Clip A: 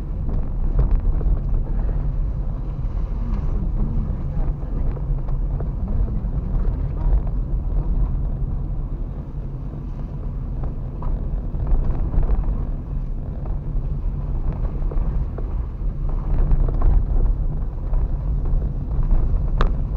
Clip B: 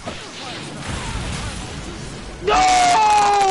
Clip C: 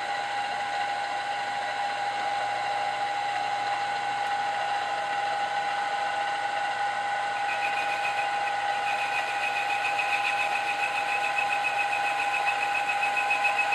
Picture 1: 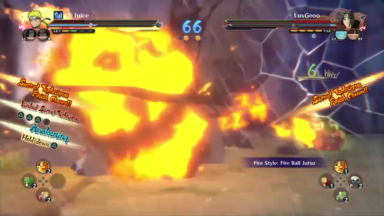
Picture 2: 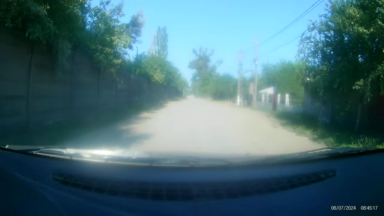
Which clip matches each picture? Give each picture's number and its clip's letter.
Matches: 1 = B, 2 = A